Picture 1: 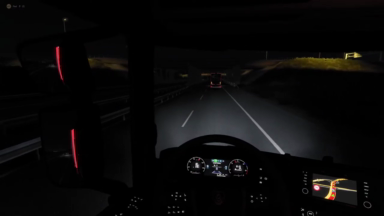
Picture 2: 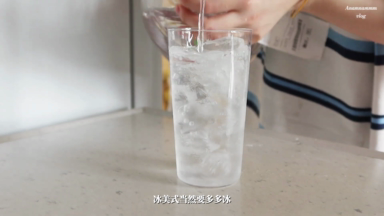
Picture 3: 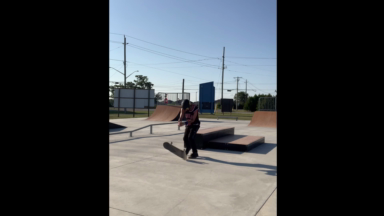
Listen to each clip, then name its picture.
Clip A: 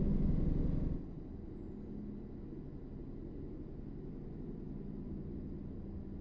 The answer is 1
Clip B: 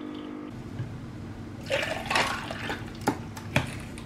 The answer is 2